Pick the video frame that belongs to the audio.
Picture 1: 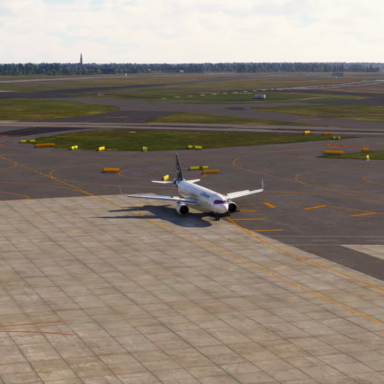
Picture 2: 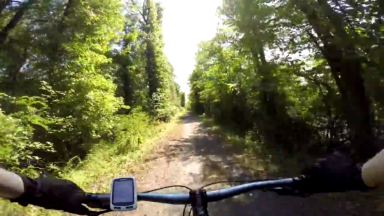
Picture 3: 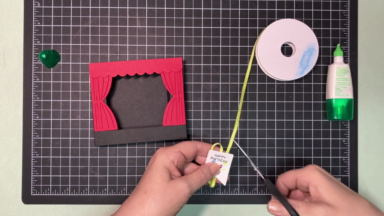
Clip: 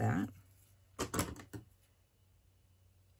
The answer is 3